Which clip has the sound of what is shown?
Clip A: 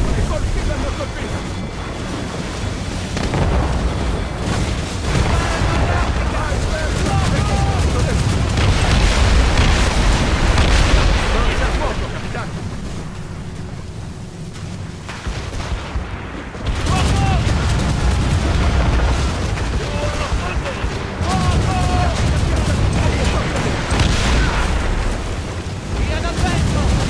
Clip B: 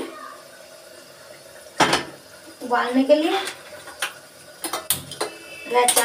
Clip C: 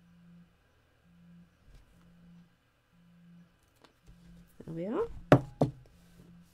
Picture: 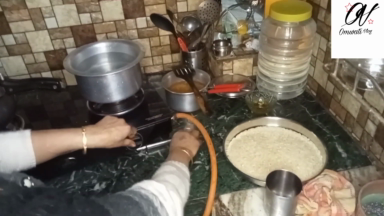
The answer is B